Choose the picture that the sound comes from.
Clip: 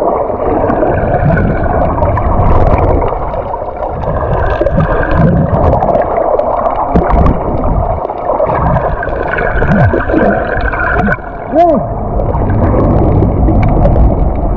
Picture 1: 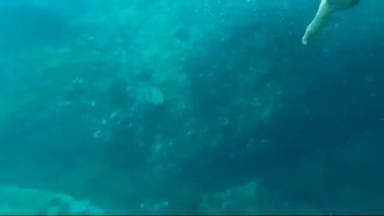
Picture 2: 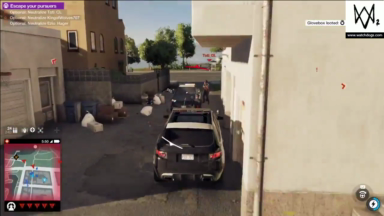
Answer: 1